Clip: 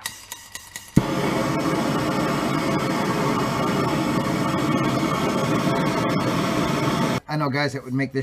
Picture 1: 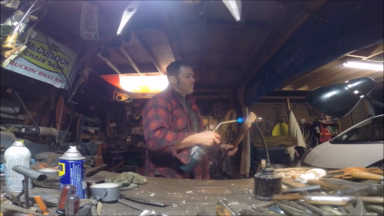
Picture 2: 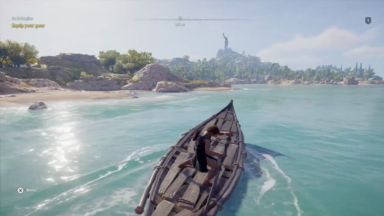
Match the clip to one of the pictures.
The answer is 1